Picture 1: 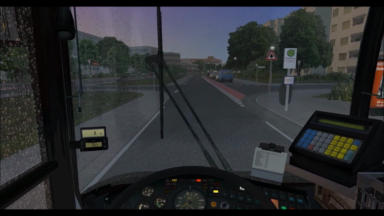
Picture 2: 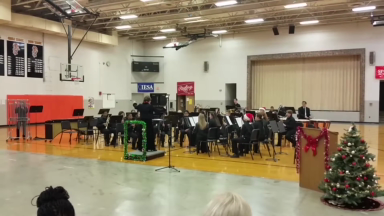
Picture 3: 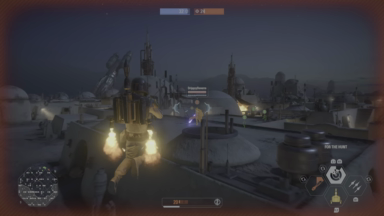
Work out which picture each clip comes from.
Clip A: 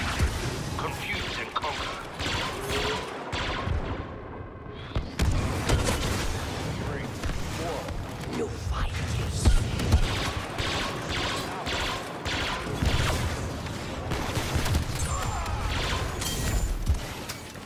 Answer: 3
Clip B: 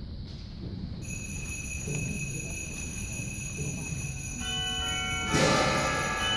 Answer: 2